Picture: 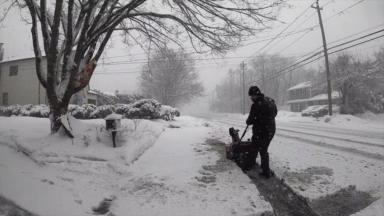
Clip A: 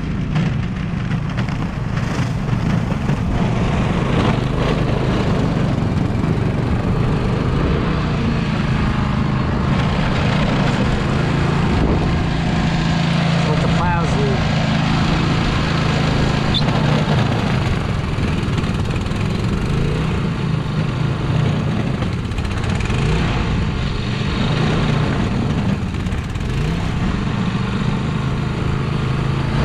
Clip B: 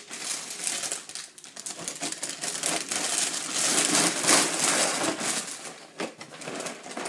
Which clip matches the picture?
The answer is A